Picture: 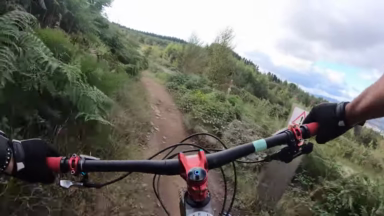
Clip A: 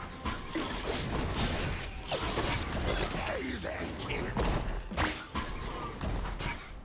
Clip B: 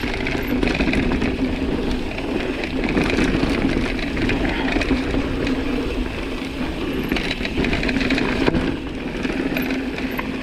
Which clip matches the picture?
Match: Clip B